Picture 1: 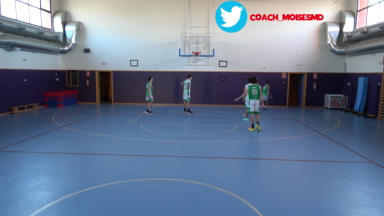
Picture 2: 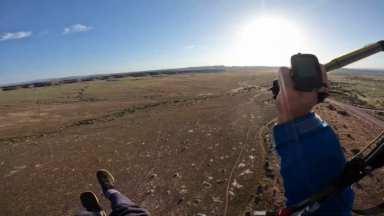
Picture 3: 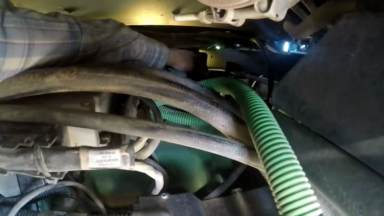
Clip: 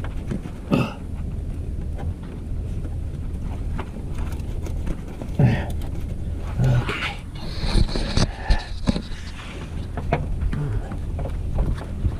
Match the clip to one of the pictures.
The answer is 3